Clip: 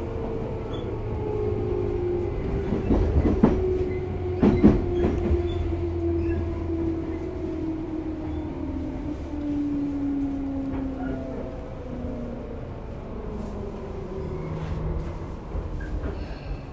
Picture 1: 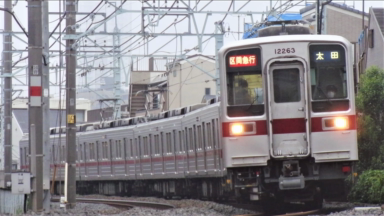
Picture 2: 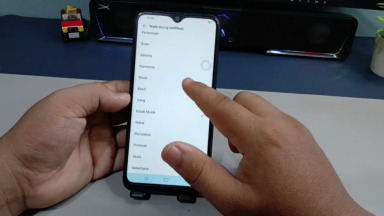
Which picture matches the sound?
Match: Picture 1